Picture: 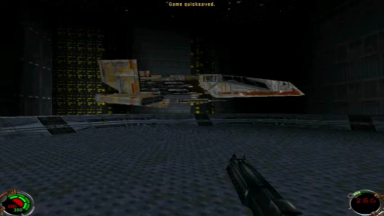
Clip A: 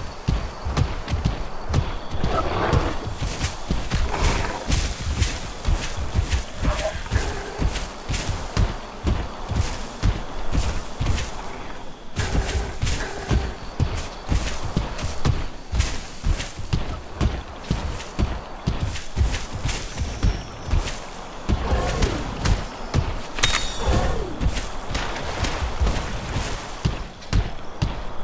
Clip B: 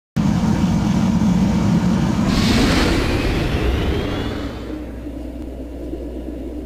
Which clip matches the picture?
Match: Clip B